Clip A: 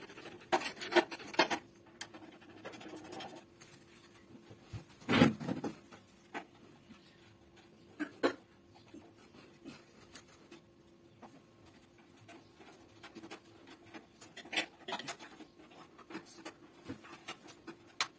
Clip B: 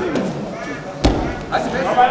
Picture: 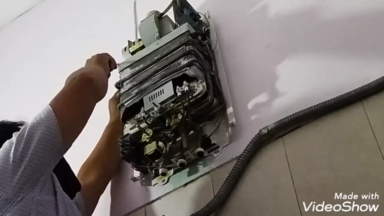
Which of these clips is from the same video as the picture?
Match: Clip A